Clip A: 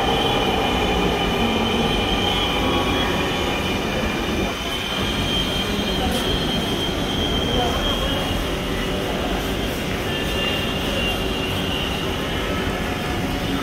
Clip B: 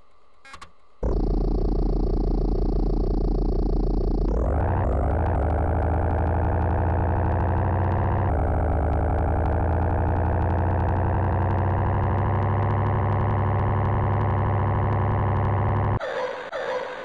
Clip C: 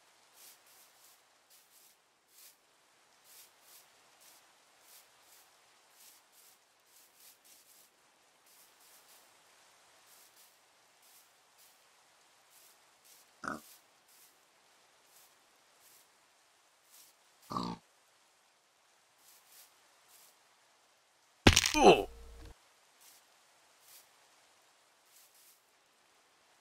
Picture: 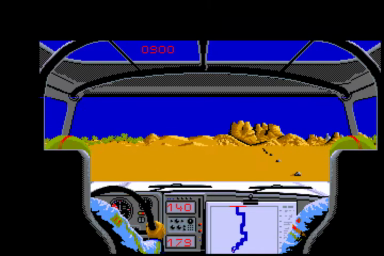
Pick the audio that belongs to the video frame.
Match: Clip B